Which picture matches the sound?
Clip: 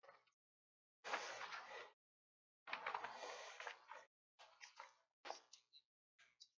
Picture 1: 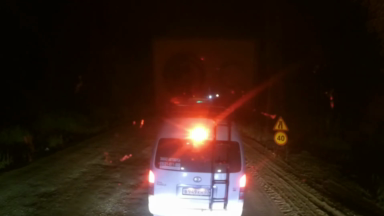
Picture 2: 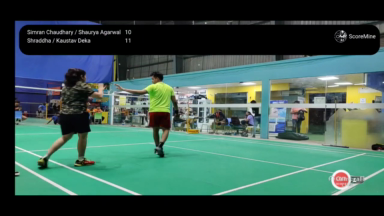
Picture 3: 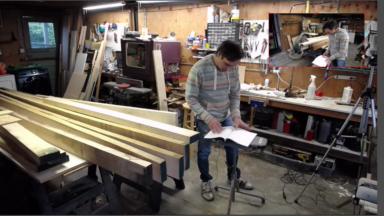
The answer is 3